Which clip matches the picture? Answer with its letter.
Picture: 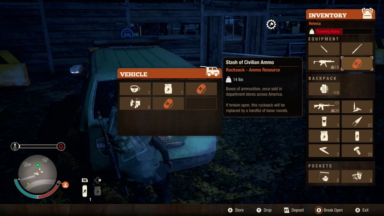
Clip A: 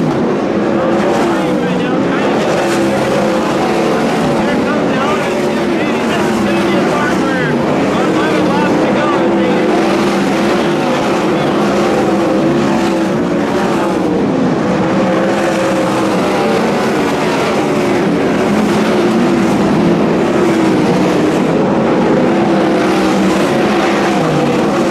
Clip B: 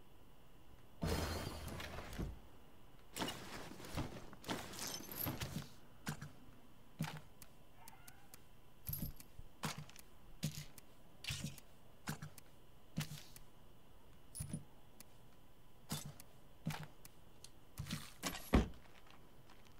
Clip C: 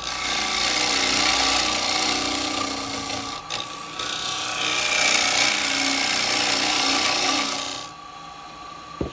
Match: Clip B